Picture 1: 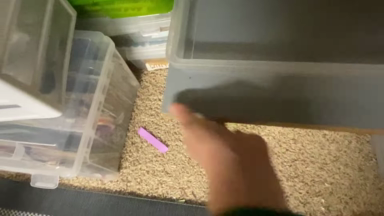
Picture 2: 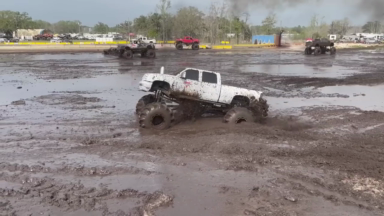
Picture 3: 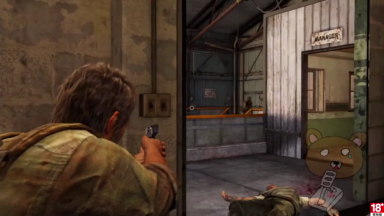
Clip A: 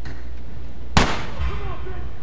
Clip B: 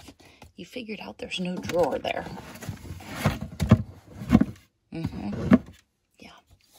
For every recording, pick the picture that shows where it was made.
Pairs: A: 3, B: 1